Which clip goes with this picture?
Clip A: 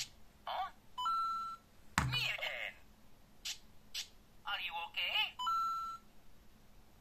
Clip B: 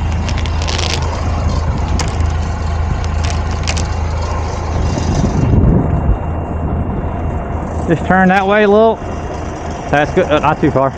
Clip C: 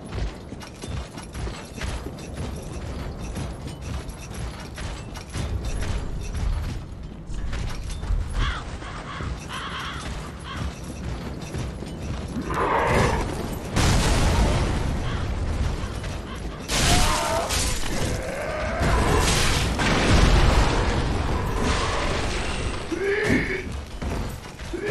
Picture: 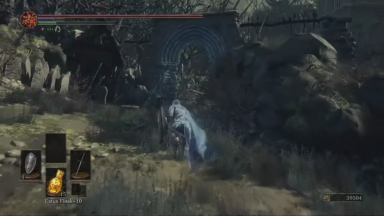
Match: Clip C